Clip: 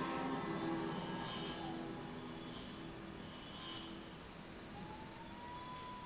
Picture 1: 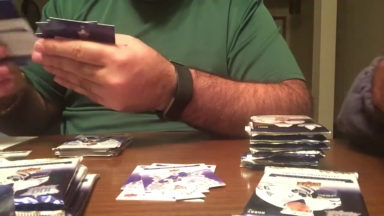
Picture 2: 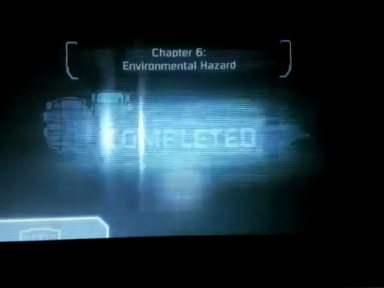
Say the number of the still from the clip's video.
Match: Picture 2